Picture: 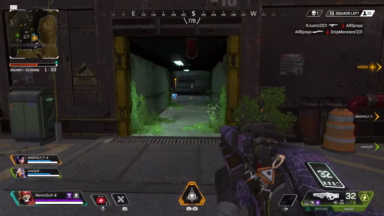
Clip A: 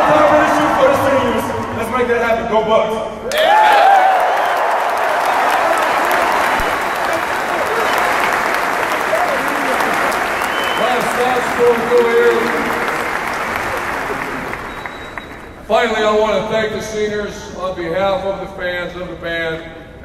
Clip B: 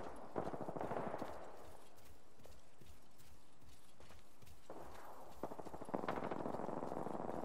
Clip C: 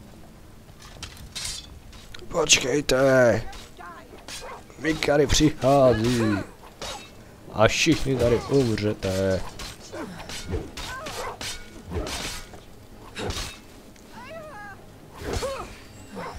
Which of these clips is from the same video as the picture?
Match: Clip B